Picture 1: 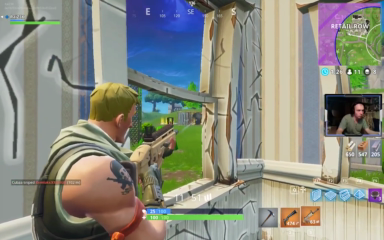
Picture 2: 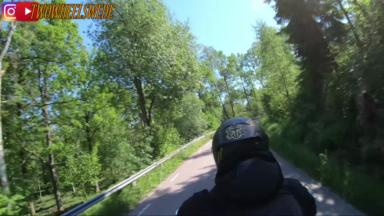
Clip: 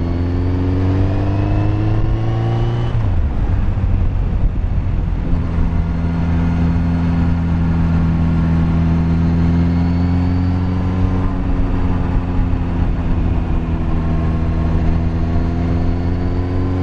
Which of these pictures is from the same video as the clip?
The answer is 2